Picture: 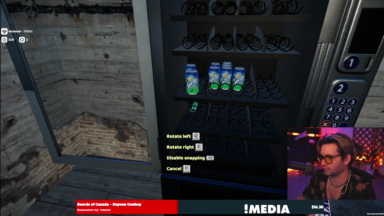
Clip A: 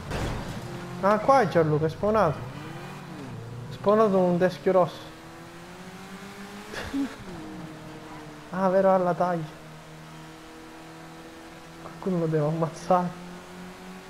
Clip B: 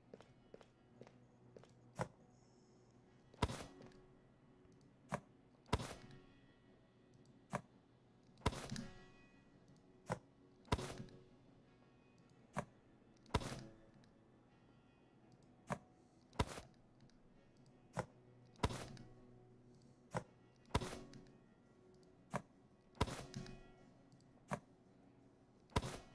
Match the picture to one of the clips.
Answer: B